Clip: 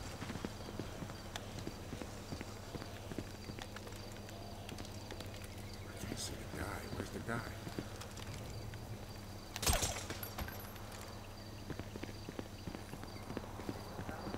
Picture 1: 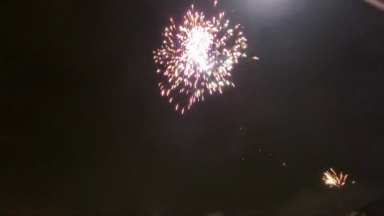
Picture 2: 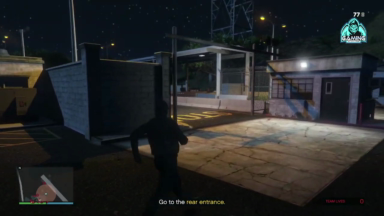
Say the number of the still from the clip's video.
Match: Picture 2